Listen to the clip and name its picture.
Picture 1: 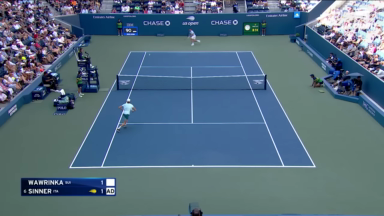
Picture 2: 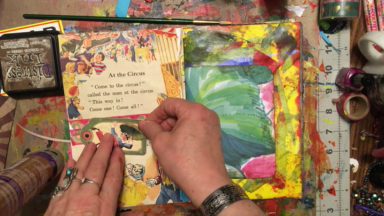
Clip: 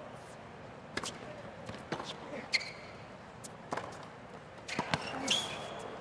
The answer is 1